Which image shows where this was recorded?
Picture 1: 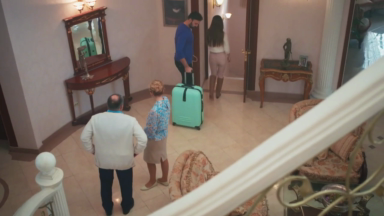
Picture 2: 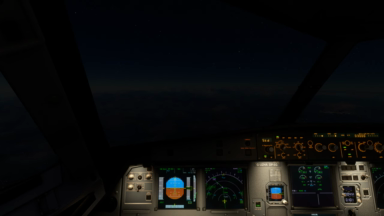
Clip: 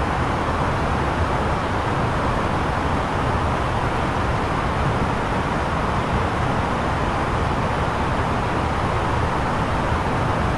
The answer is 2